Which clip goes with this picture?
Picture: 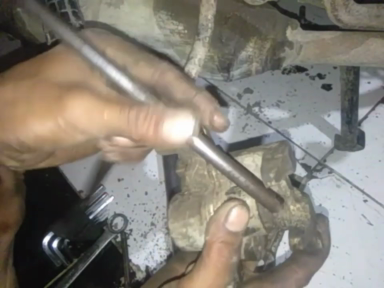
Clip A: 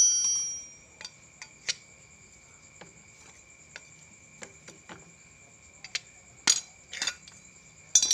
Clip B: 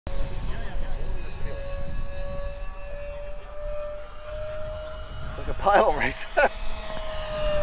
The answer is A